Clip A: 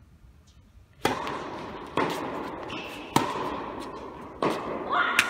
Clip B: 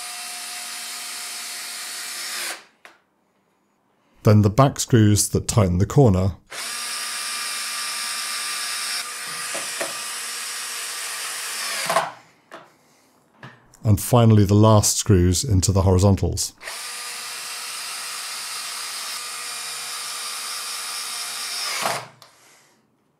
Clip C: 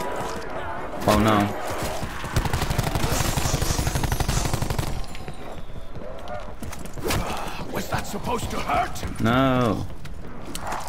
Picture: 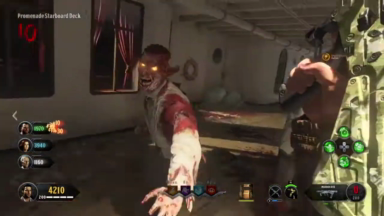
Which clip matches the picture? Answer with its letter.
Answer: C